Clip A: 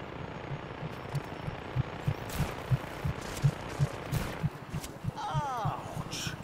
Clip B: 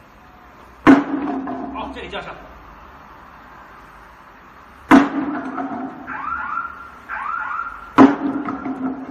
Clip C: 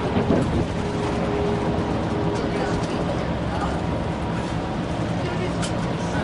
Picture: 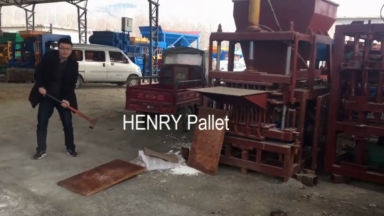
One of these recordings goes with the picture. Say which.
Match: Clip B